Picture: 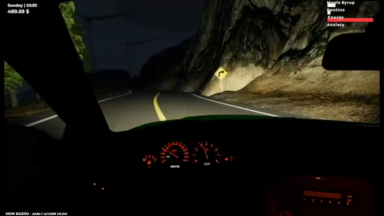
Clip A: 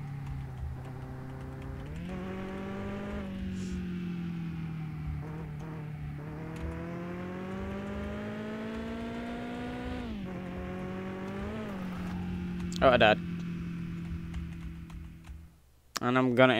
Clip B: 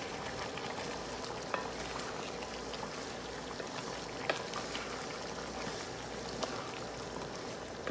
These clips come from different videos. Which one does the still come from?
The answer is A